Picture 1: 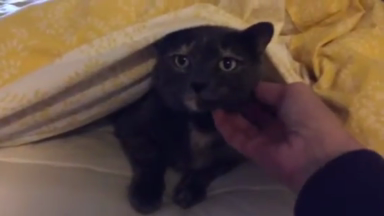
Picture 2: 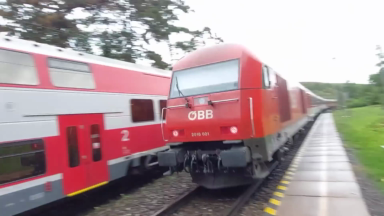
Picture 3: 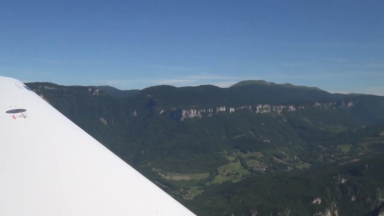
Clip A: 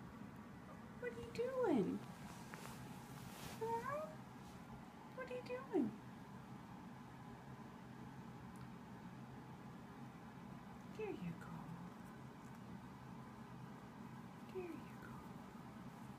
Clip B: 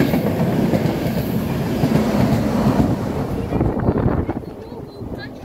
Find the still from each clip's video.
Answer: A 1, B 2